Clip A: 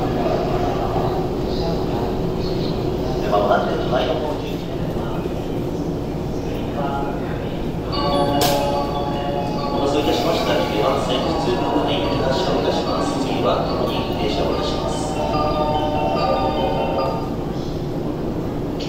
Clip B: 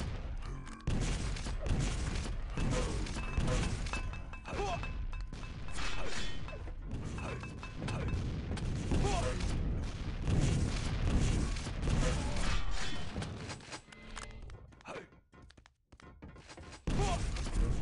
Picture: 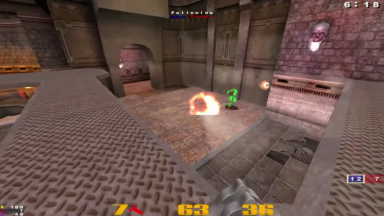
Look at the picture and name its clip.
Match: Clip B